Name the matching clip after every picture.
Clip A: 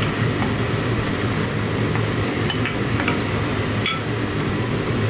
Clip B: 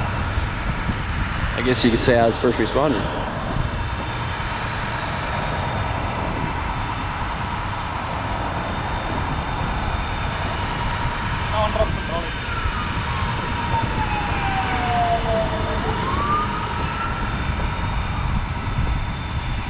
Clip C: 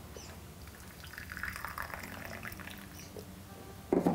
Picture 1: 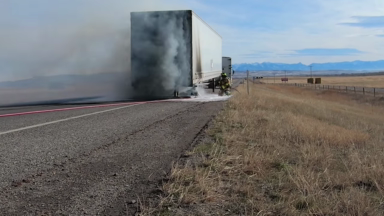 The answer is B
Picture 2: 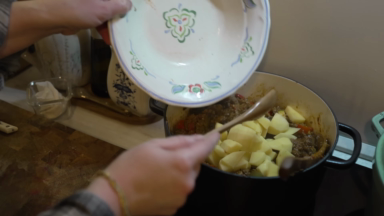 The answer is A